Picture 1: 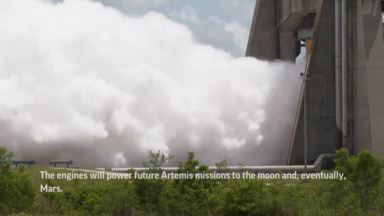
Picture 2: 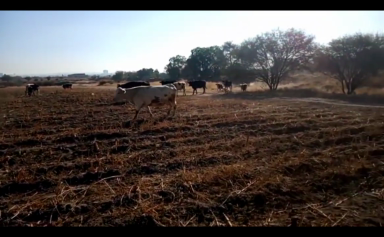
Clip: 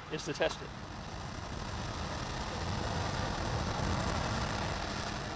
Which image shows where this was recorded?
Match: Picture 1